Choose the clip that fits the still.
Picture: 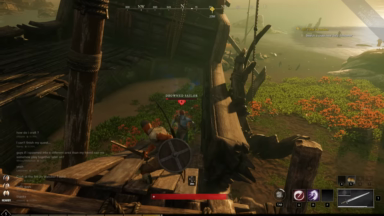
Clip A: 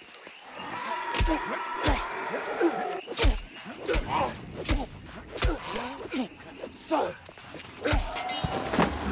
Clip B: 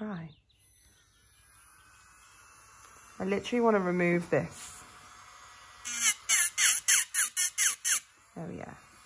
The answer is A